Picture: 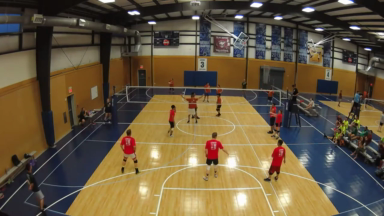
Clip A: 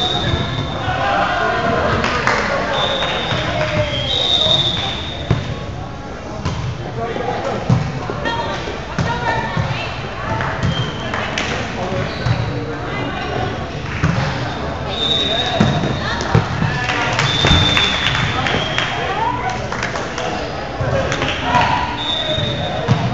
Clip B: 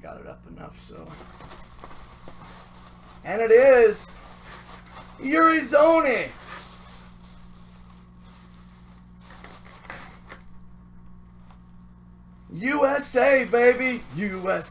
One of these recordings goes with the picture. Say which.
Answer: A